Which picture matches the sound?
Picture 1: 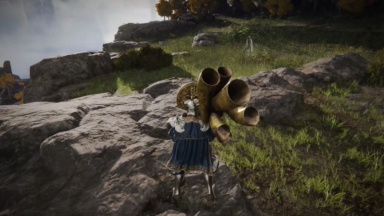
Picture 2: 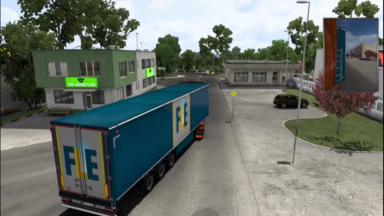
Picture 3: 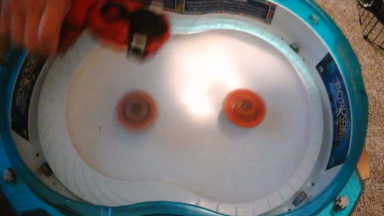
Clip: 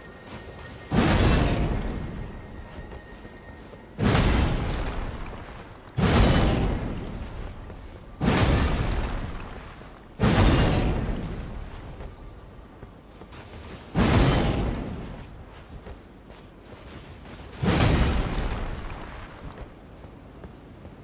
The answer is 1